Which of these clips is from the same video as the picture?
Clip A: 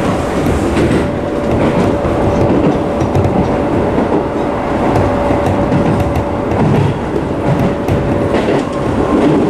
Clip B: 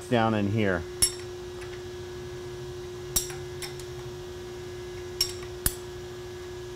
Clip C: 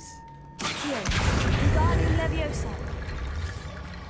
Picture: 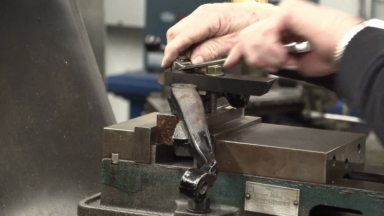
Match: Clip B